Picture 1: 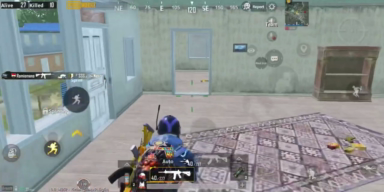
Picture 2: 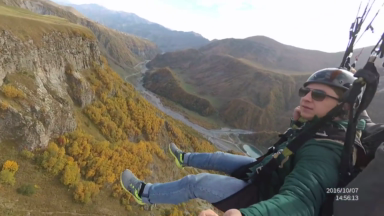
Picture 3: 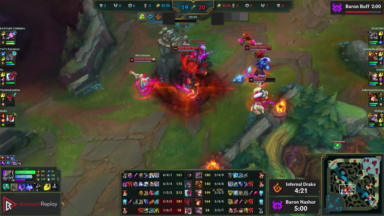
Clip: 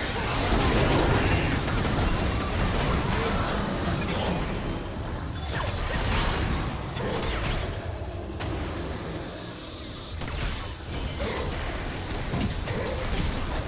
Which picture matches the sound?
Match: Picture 3